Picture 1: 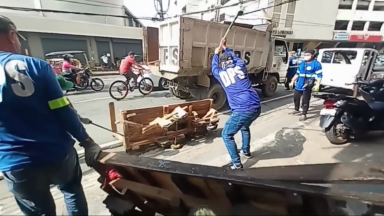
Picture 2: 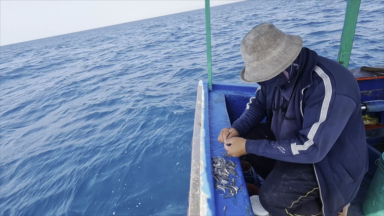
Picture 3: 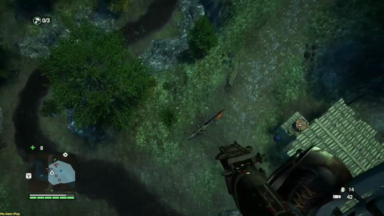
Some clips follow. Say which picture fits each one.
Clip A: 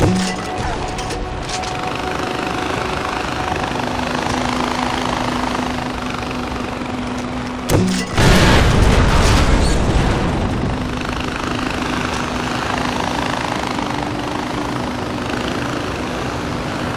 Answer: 3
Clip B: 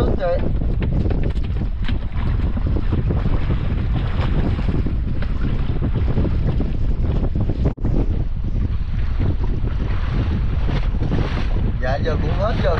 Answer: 2